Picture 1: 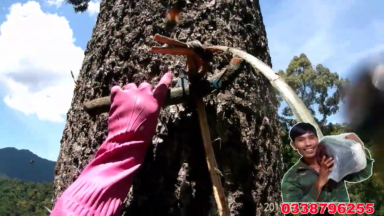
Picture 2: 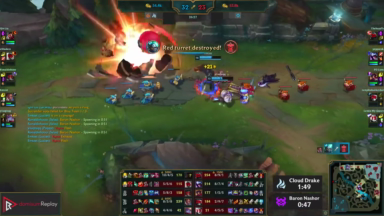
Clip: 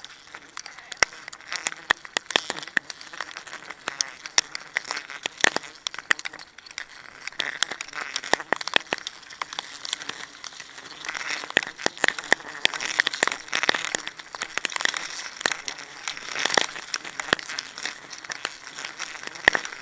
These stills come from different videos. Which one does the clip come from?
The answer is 1